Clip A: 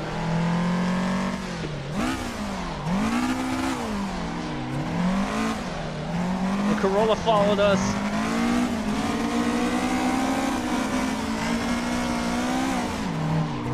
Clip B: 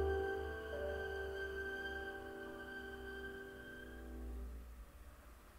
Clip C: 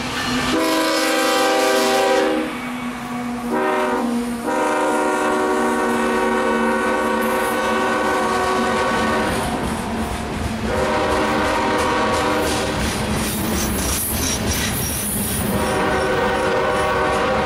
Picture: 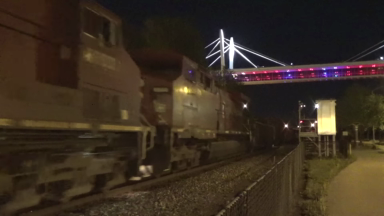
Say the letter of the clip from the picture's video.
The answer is C